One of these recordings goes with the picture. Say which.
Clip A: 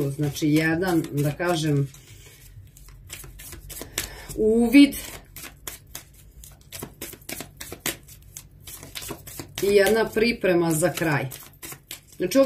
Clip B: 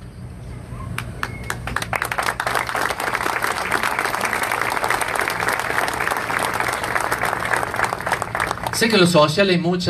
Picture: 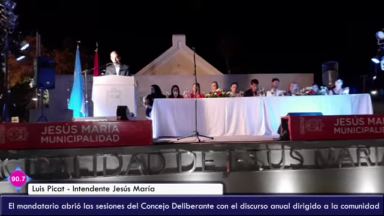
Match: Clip B